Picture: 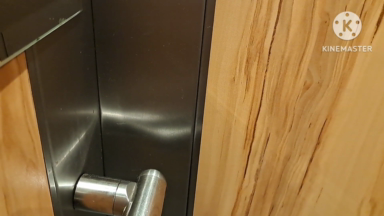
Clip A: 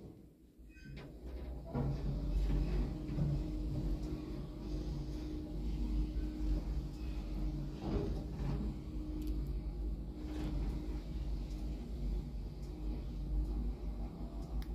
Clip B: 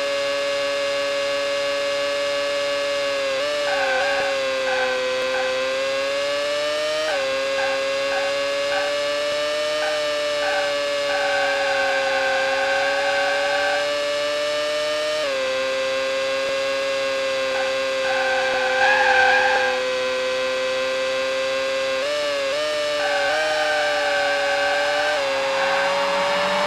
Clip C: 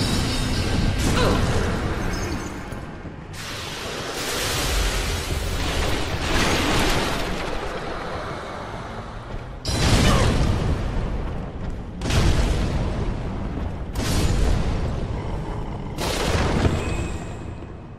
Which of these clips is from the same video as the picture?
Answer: A